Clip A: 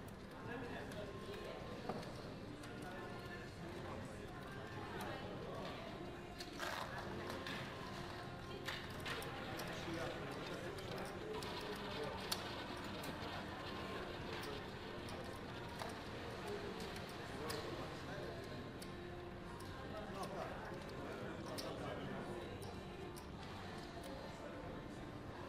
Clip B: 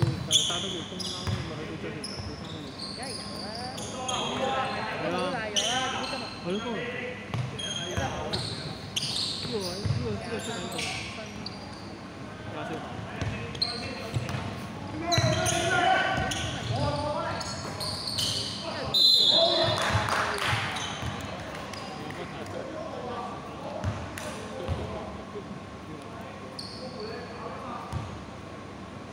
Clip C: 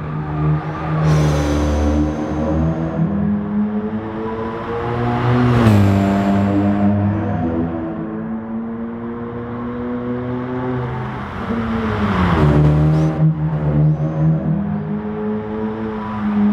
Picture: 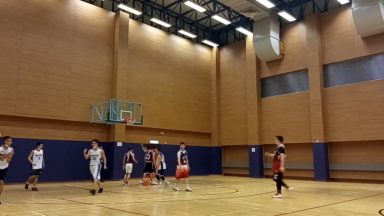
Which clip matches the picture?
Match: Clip B